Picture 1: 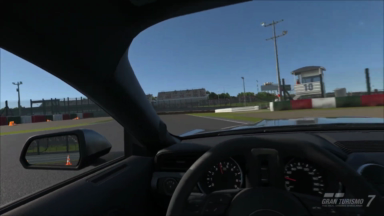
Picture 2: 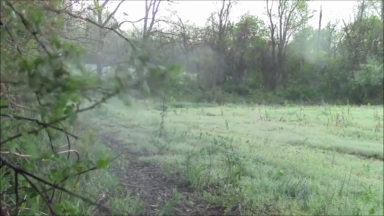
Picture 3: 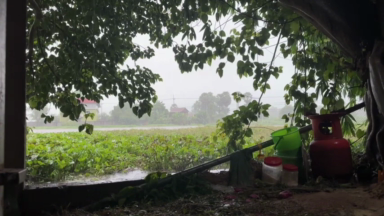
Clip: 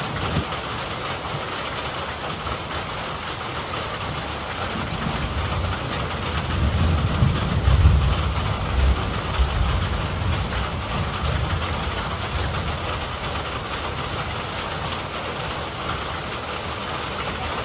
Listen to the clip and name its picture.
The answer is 3